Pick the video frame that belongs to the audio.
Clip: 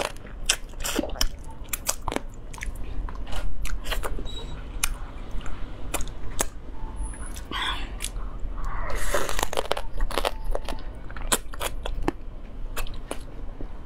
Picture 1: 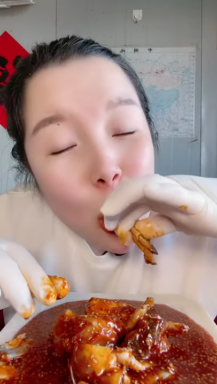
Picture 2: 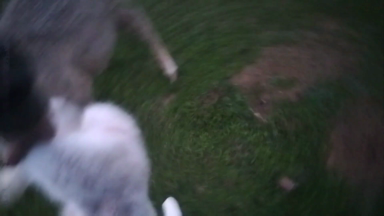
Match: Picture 1